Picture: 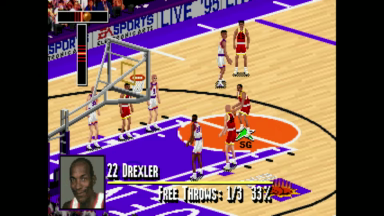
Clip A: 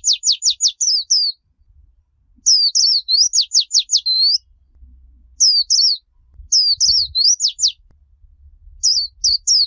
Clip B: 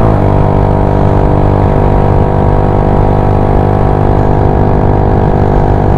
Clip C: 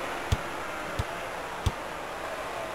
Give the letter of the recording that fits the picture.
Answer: C